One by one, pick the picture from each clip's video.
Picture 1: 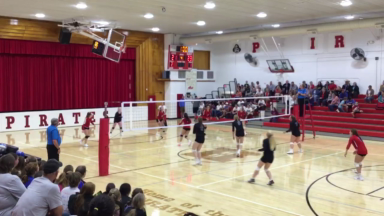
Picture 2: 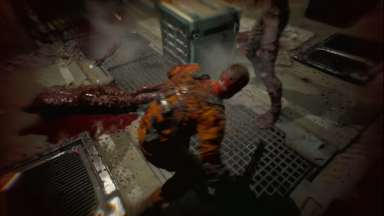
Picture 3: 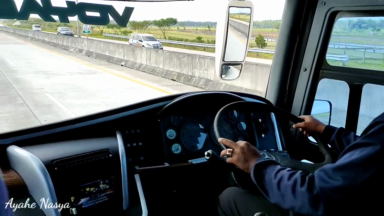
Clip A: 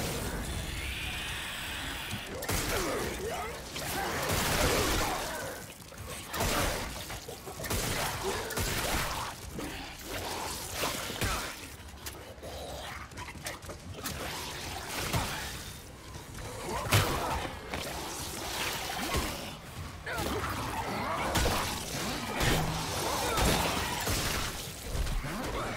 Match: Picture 2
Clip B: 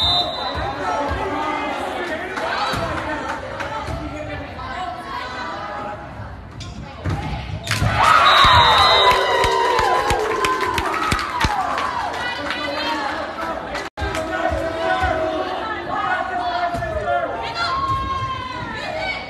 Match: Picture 1